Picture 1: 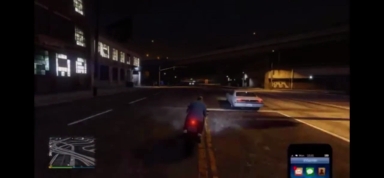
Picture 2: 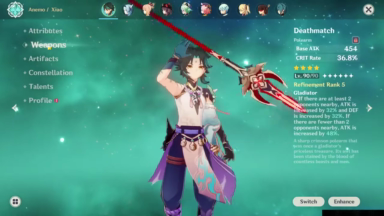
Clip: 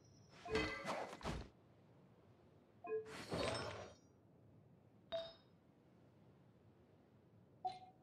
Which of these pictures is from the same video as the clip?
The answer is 2